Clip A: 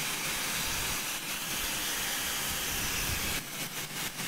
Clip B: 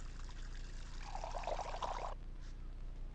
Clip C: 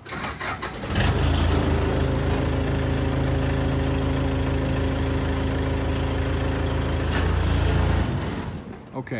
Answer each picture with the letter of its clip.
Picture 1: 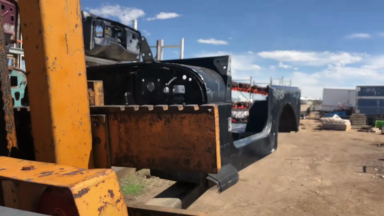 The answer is C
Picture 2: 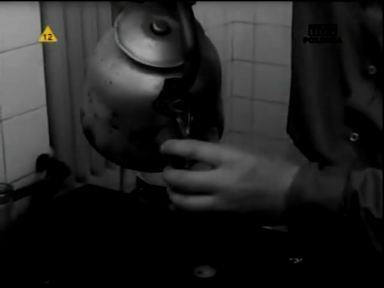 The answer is B